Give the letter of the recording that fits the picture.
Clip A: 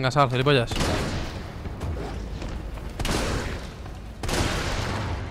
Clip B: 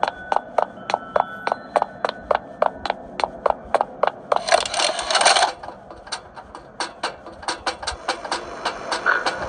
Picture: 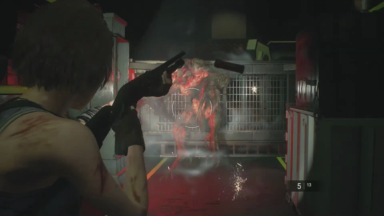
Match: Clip A